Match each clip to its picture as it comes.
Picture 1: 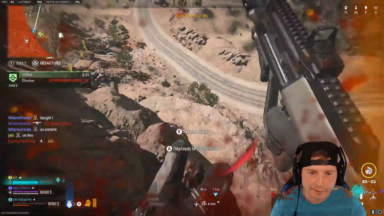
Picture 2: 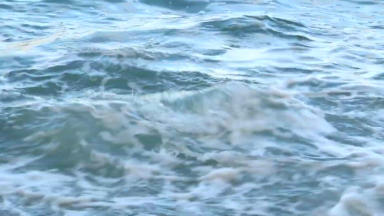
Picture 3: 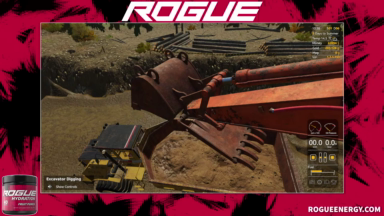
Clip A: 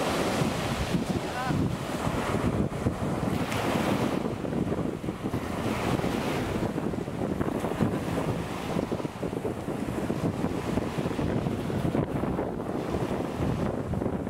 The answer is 2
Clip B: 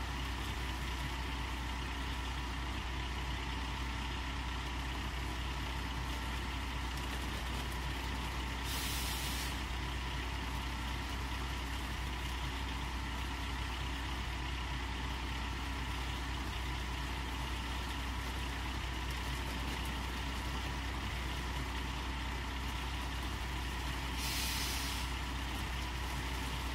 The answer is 3